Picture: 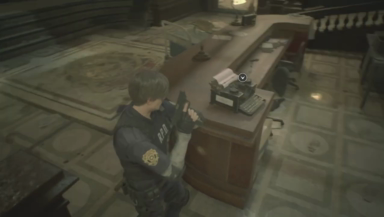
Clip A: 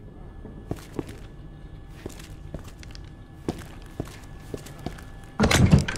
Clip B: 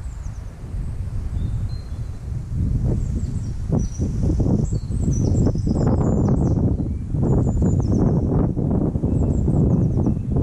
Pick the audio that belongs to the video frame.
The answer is A